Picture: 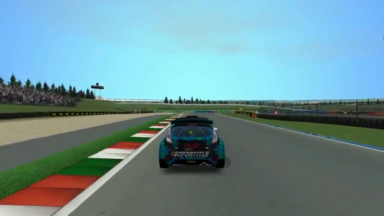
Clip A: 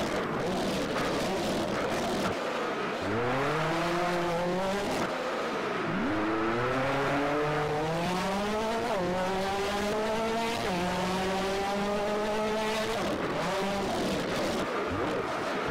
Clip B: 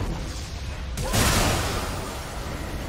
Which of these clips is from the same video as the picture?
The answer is A